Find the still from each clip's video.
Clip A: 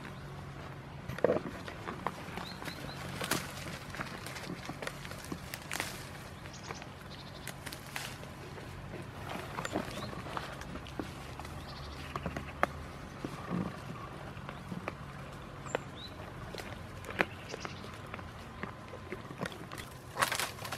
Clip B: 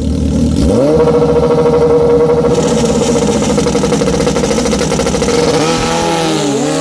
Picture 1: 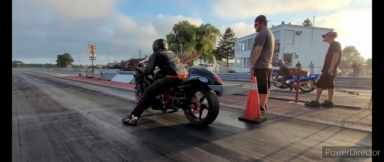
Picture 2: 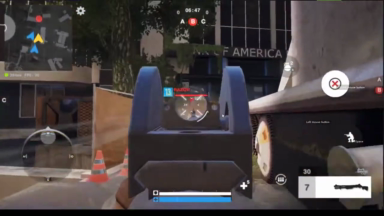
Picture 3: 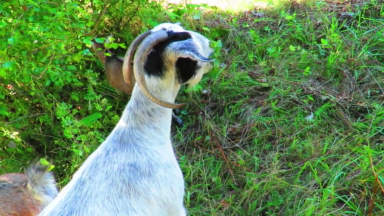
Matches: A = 3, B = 1